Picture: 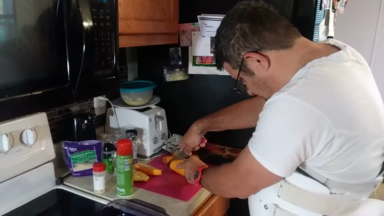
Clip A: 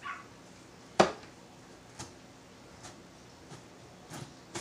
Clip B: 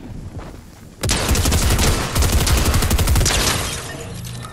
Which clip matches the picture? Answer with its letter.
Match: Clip A